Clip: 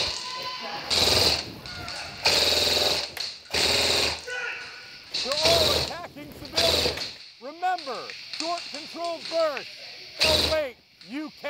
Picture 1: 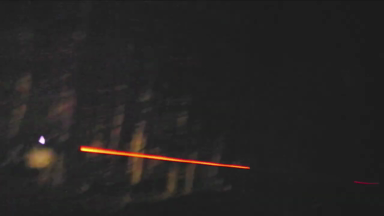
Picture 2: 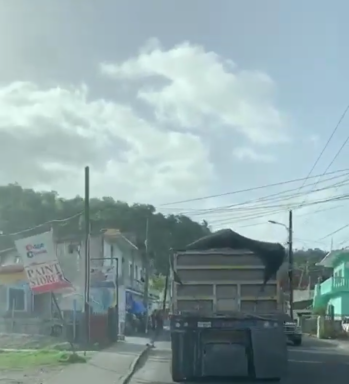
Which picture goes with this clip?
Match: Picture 1